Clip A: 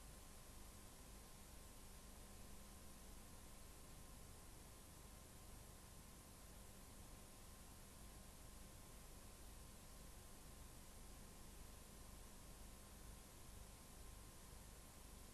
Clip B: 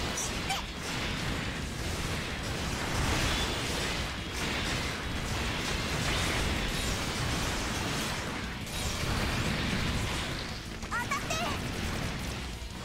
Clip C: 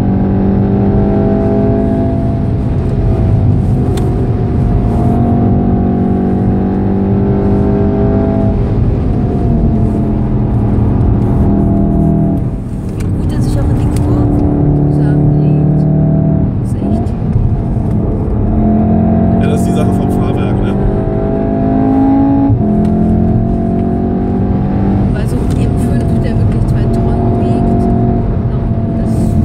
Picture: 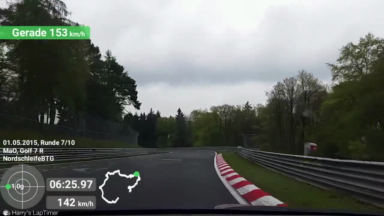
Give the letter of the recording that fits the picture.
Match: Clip C